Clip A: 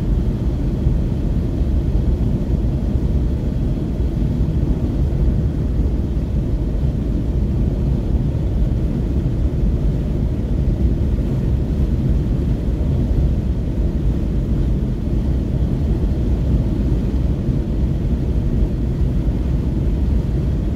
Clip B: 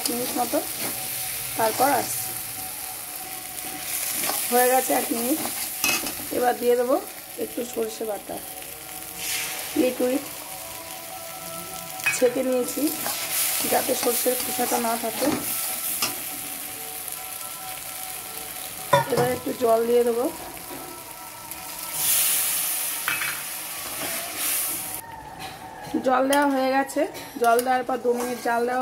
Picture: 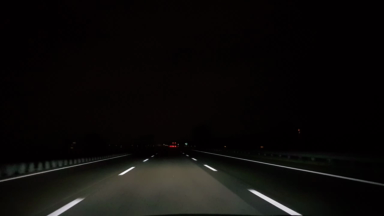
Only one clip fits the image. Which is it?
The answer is A